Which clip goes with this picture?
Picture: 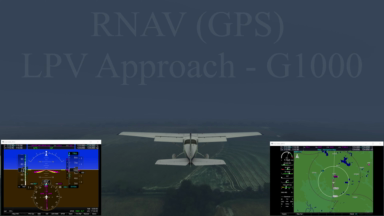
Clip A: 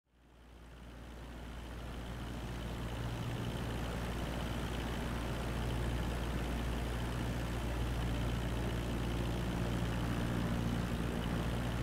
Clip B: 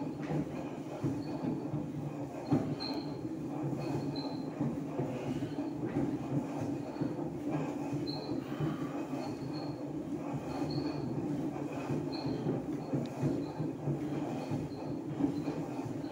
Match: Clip A